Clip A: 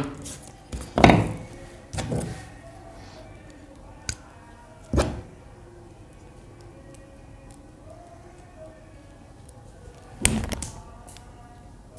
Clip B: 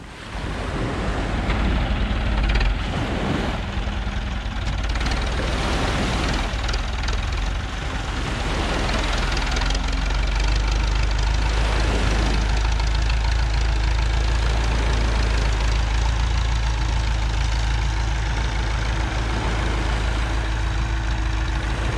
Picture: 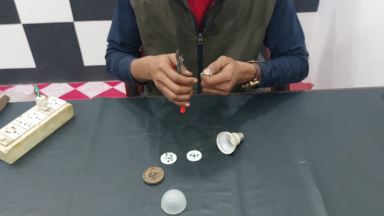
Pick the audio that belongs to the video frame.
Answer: A